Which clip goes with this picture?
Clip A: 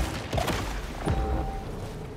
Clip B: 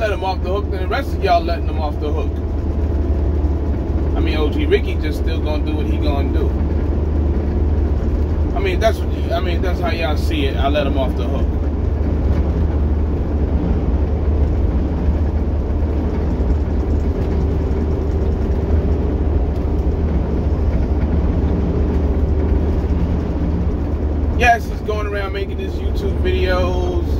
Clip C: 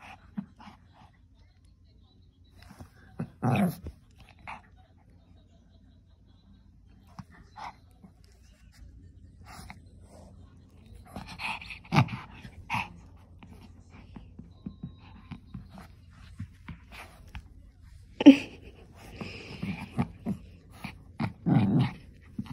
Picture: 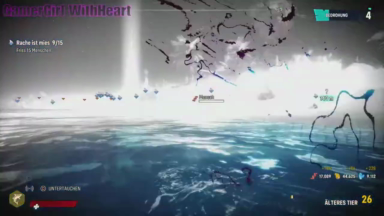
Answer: A